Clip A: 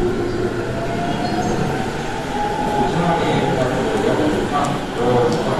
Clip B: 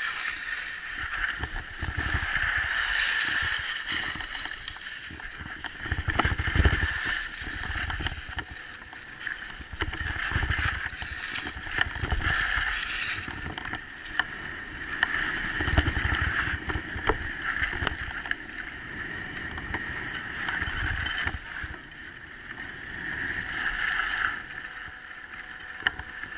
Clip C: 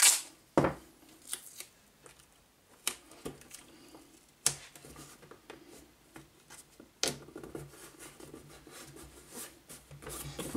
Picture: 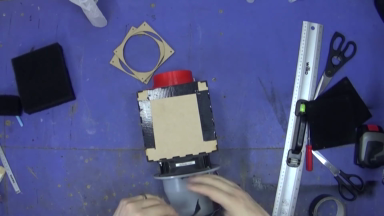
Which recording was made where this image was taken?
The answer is C